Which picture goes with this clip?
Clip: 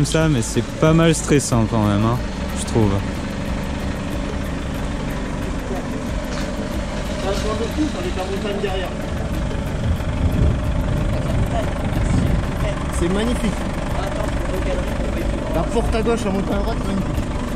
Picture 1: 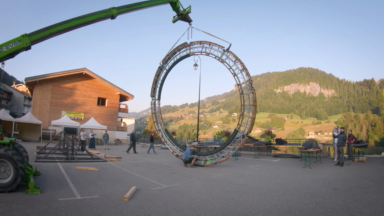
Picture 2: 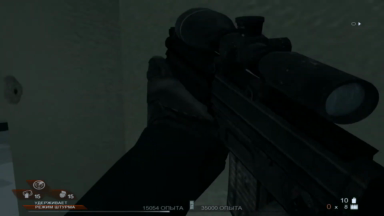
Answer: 1